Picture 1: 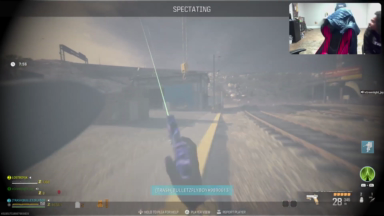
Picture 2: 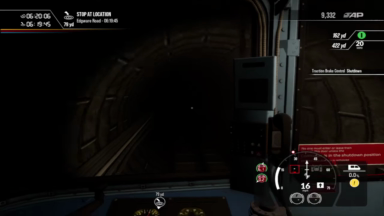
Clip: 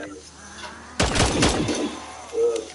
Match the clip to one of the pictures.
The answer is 1